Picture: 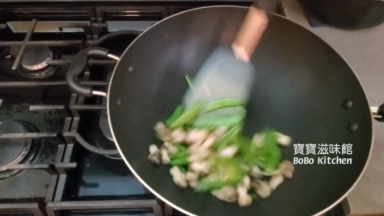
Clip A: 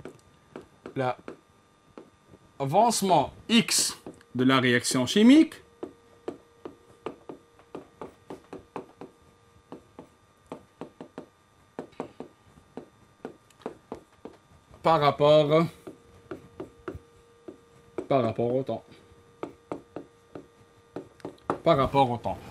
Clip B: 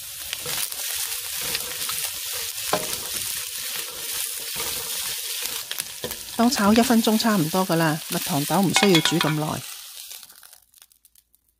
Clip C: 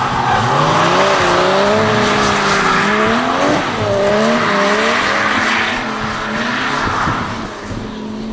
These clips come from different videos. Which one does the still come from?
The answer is B